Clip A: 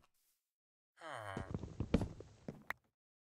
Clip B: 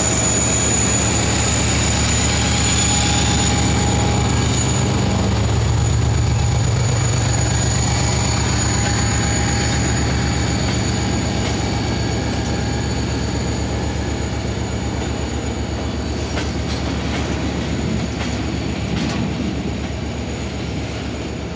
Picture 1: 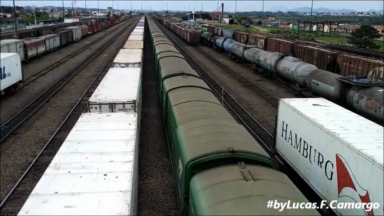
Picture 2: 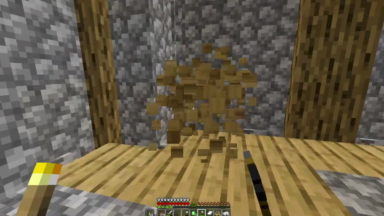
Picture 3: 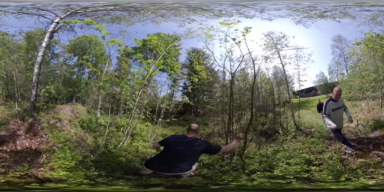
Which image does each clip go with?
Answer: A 2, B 1